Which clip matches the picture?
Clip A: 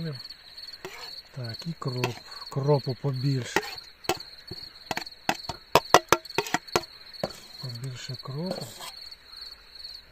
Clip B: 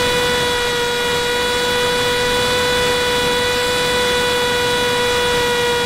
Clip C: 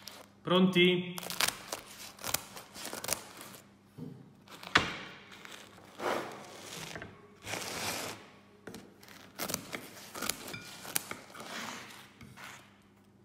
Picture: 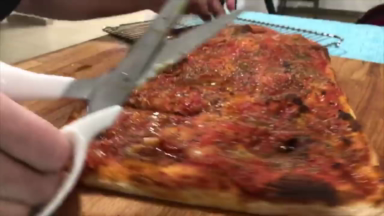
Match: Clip C